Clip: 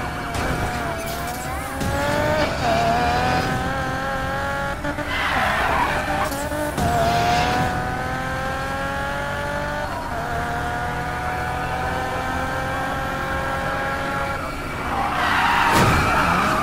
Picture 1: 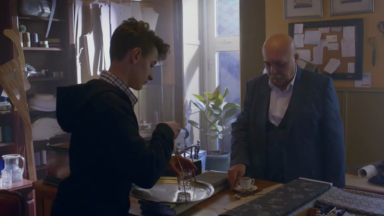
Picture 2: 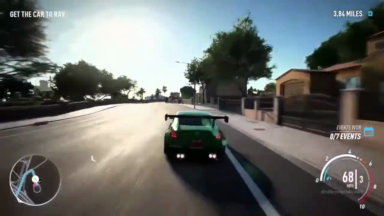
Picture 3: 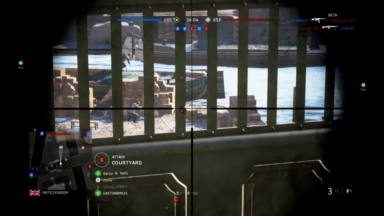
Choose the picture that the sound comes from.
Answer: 2